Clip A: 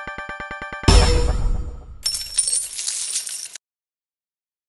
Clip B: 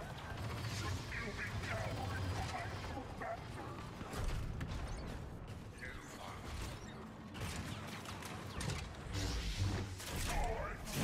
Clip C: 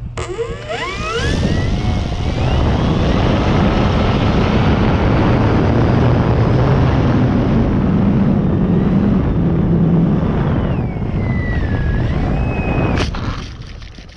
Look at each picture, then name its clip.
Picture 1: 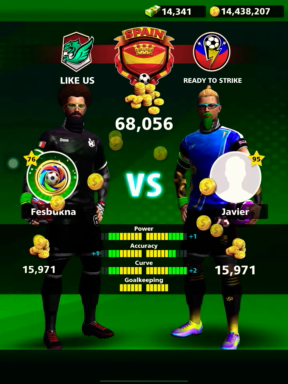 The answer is A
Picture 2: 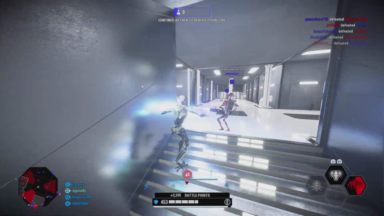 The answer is B